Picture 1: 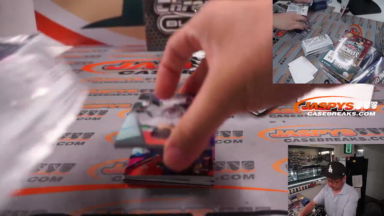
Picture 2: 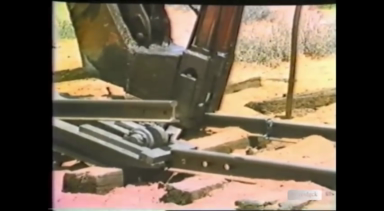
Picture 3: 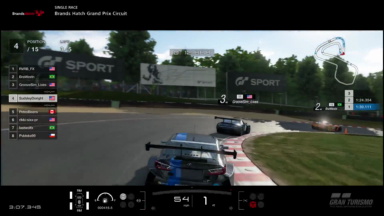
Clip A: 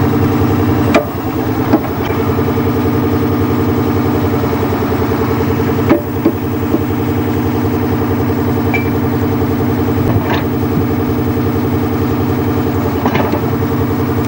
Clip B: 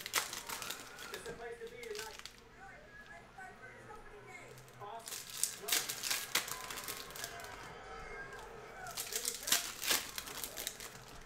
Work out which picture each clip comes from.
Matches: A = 2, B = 1